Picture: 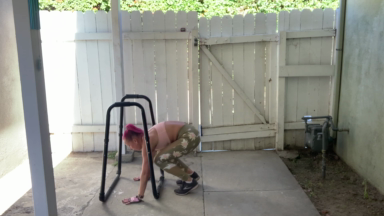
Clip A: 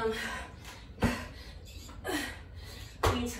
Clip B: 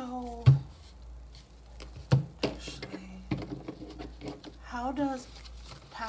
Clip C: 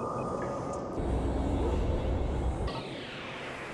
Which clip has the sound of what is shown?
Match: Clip A